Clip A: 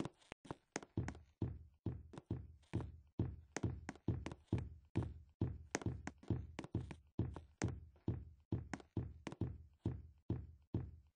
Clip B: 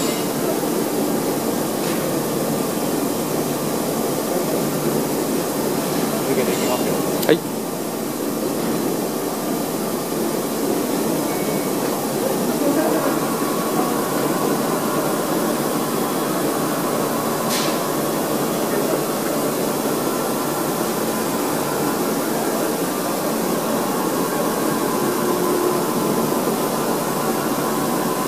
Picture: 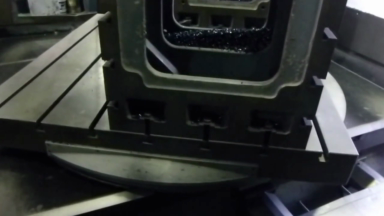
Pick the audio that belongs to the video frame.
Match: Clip B